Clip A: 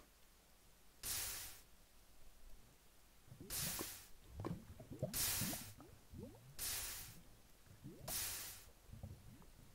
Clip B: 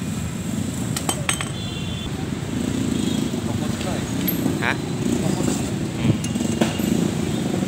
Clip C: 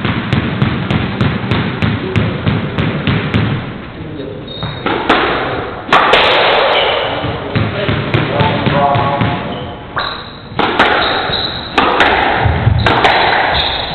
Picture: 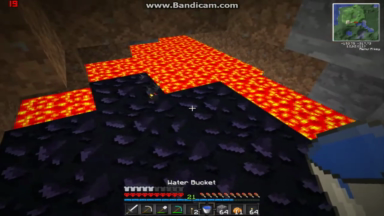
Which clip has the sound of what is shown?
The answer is A